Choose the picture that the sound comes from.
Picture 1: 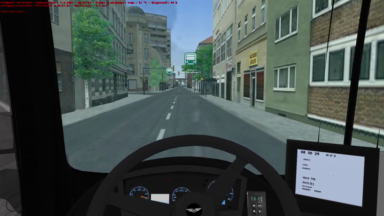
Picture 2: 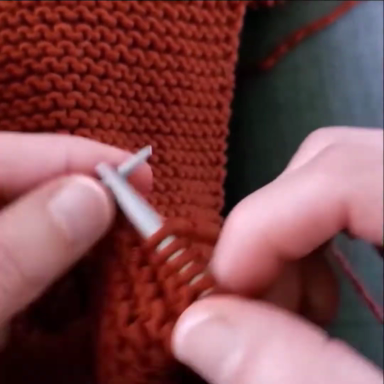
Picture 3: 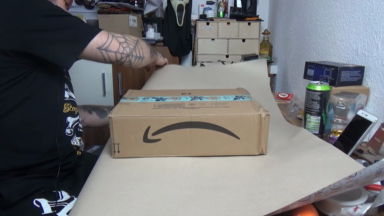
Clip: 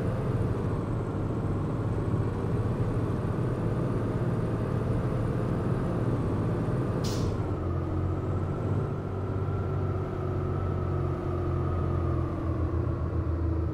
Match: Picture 1